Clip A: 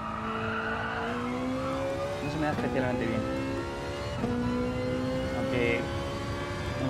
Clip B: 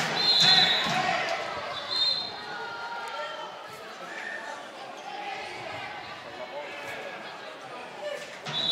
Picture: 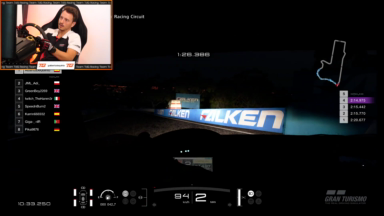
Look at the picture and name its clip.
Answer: A